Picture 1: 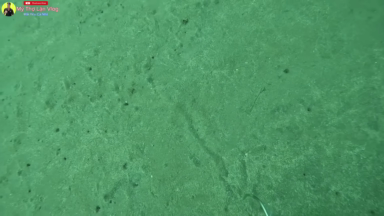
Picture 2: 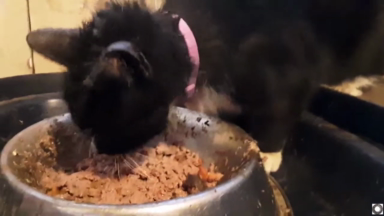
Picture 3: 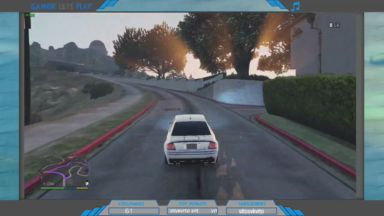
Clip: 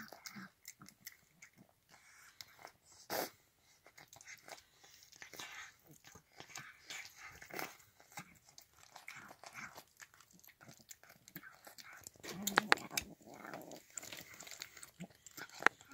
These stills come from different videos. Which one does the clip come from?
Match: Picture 2